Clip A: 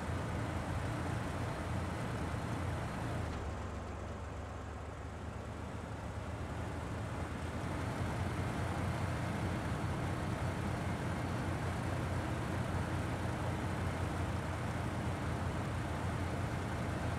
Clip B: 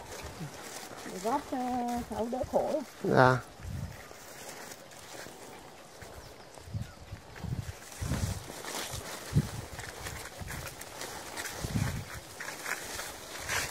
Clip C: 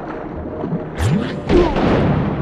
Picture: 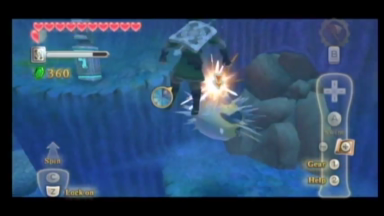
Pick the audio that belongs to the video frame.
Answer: C